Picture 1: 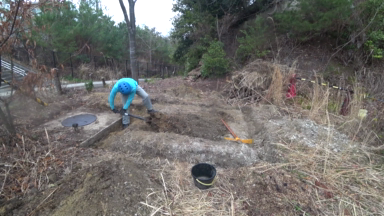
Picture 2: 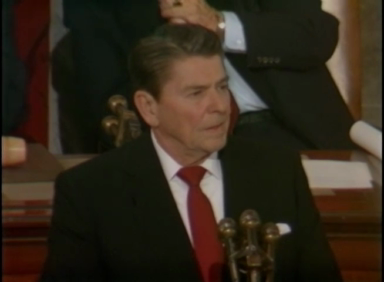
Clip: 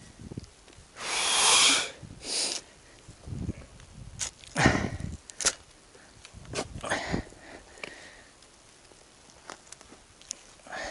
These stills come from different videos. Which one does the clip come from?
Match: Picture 1